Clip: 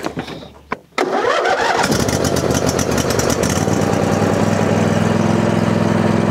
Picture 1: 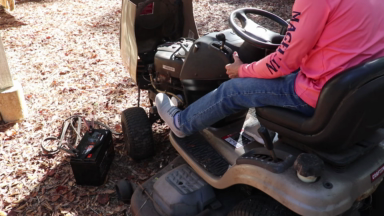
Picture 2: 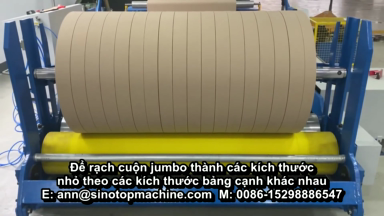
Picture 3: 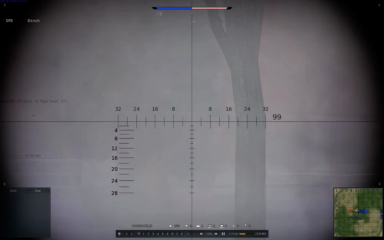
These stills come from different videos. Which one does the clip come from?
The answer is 1